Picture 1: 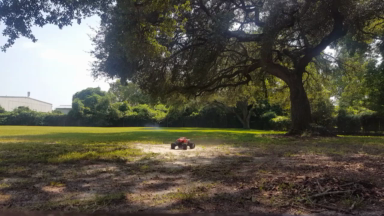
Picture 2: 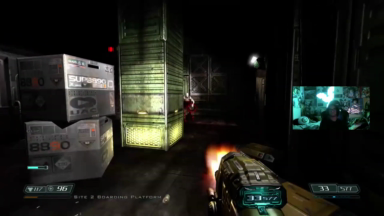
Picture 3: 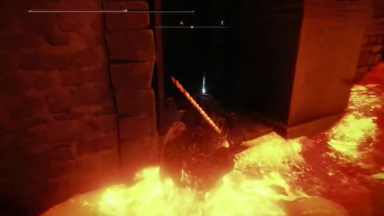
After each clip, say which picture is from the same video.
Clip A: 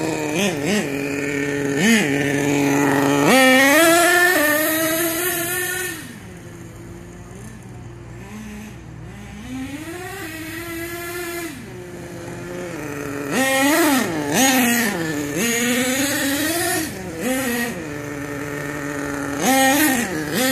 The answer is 1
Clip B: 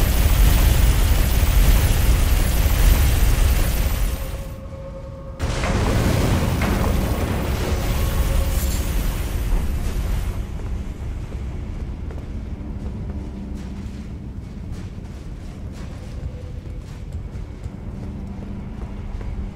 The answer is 3